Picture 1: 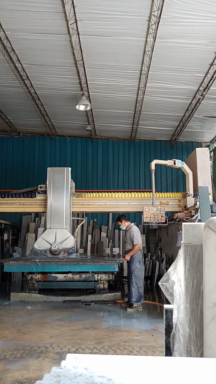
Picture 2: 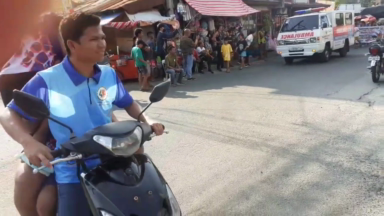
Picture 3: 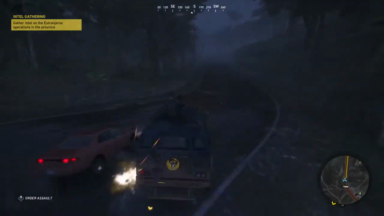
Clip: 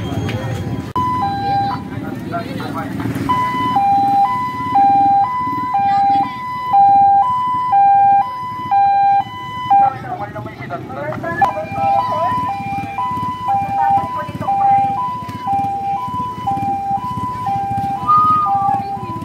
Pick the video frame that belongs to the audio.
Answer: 2